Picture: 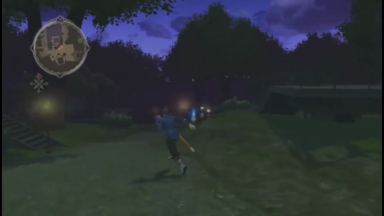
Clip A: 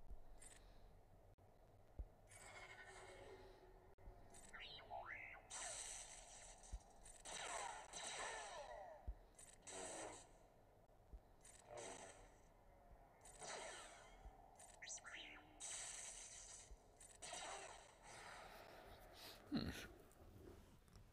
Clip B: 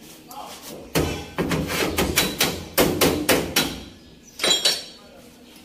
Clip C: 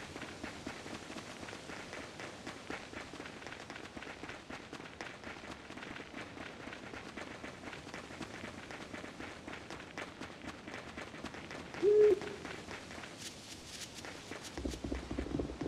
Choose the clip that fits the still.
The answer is C